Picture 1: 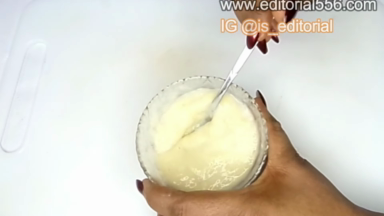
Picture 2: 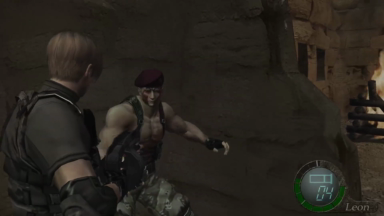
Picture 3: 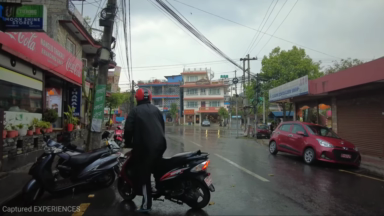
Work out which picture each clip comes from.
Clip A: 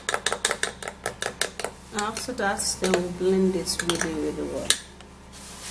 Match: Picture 1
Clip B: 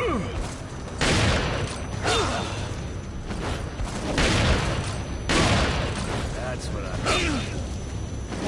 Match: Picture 2